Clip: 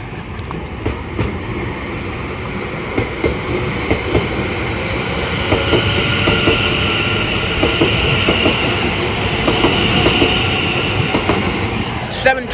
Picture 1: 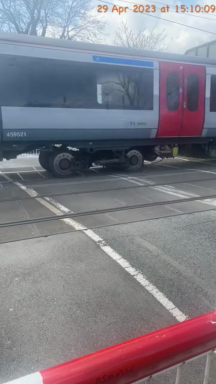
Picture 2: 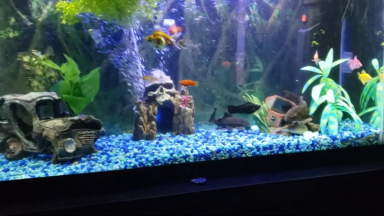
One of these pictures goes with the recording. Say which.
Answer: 1